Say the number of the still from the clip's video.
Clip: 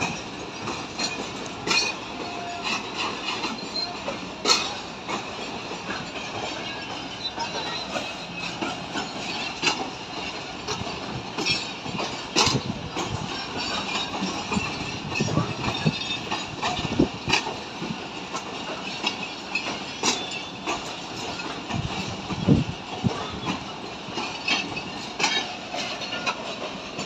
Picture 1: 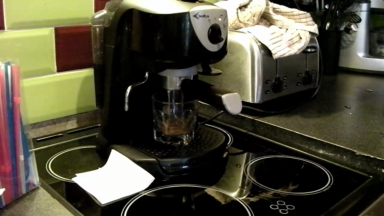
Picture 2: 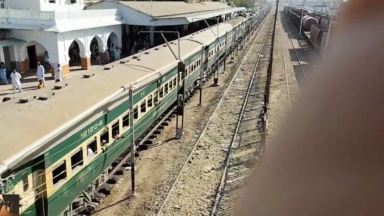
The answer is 2